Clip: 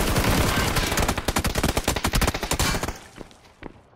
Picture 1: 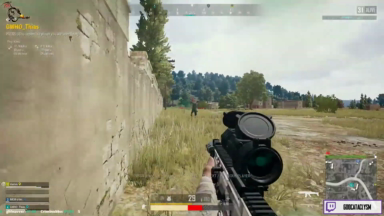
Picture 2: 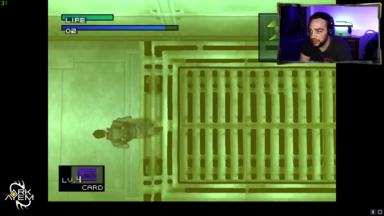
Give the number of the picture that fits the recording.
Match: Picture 1